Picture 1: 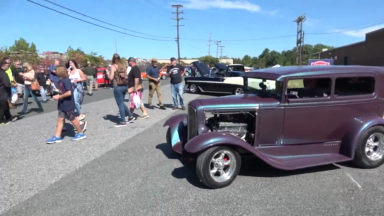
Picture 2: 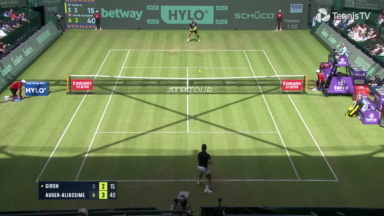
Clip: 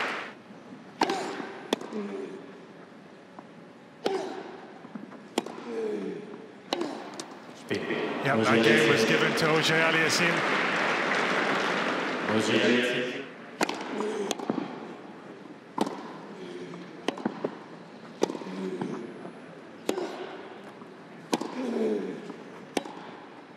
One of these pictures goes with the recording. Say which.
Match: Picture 2